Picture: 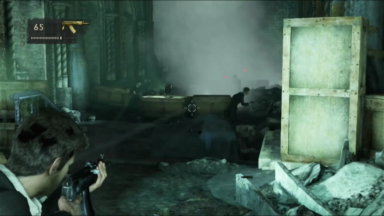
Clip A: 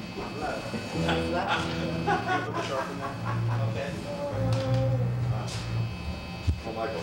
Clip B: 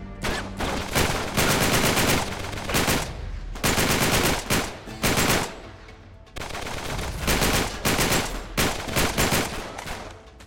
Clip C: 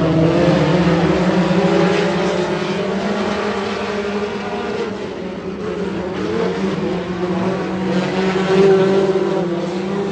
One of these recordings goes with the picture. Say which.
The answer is B